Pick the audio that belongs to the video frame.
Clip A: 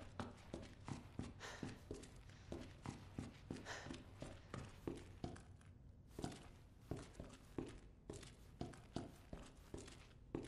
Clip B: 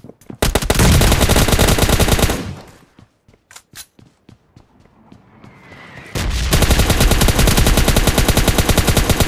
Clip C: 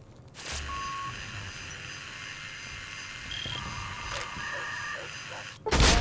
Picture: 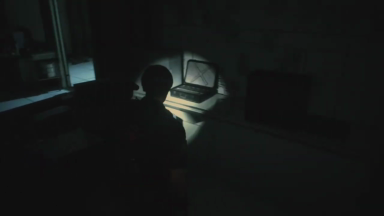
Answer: A